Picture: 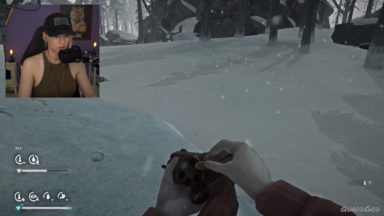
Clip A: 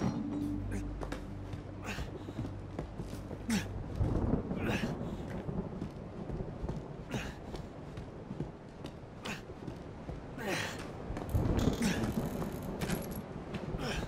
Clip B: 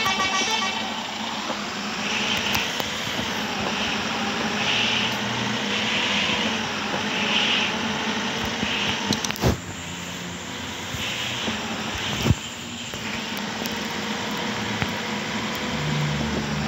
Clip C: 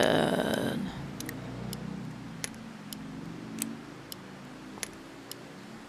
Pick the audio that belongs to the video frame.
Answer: C